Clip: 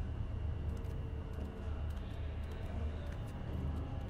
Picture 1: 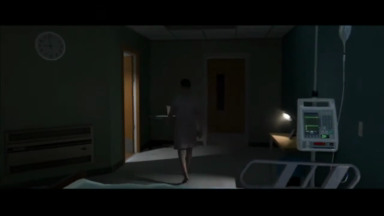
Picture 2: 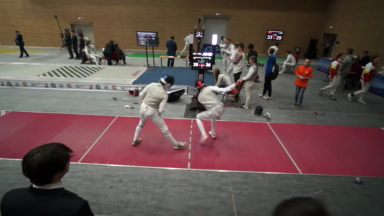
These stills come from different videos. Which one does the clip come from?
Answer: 1